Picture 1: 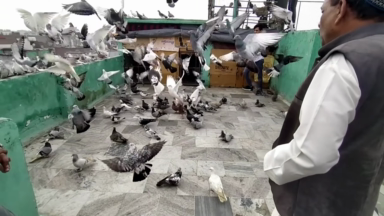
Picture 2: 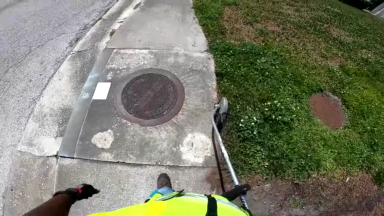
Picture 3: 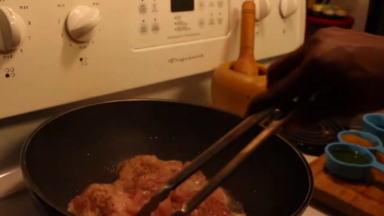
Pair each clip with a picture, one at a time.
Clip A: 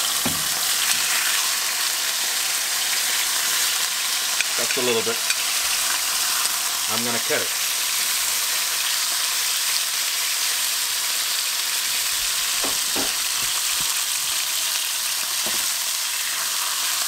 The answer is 3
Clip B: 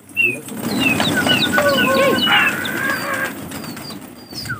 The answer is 1